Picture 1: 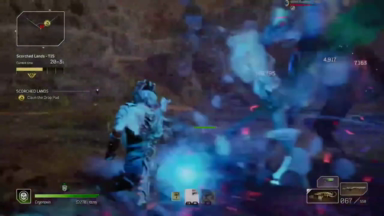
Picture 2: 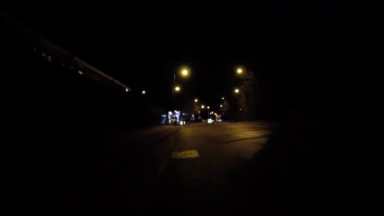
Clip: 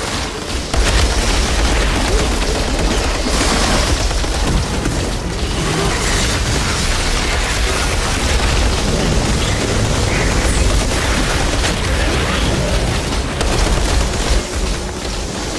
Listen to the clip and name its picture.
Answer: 1